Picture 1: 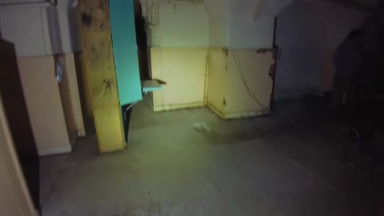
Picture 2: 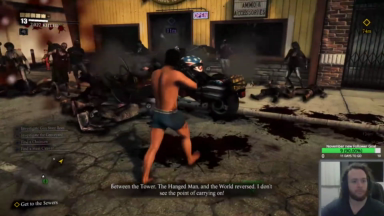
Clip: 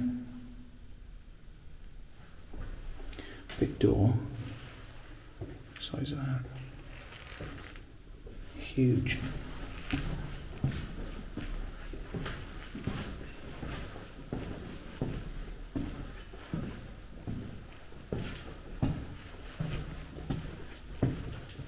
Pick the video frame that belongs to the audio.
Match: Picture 1